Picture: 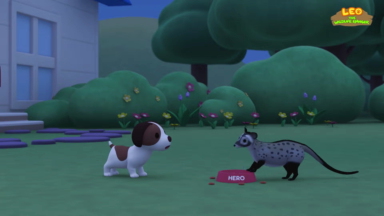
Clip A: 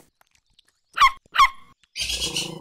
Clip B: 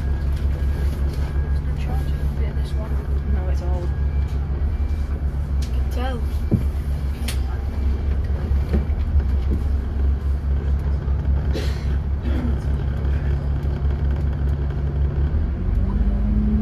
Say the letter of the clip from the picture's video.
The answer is A